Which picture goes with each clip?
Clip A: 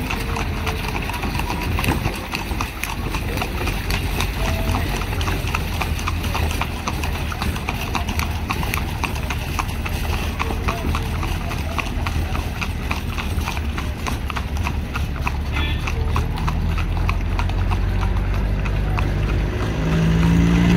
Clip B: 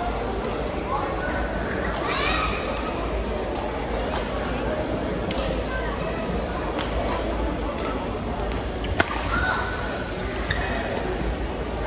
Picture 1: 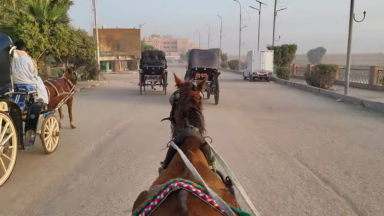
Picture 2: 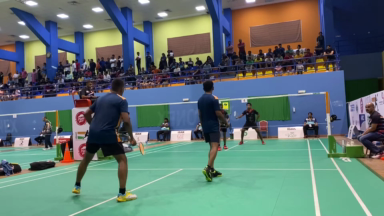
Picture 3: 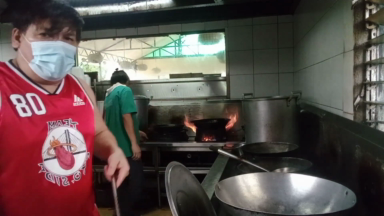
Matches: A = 1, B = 2